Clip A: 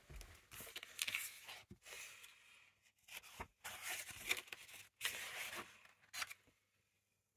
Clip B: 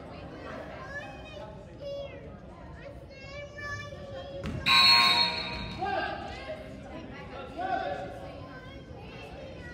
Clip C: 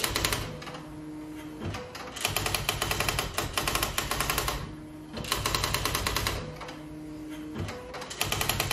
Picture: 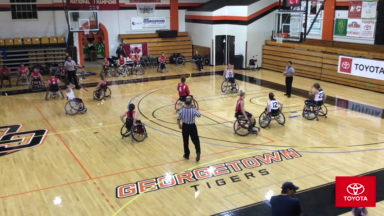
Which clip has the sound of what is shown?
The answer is B